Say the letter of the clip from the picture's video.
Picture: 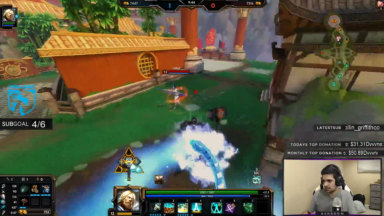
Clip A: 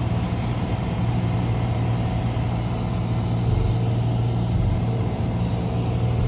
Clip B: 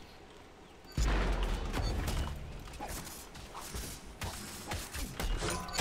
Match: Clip B